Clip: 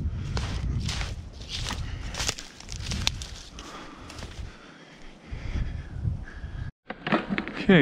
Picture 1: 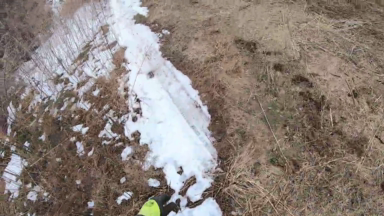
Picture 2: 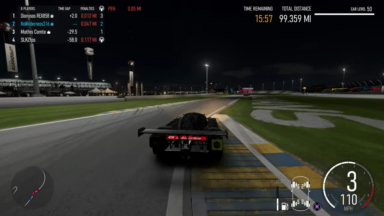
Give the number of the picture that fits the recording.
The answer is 1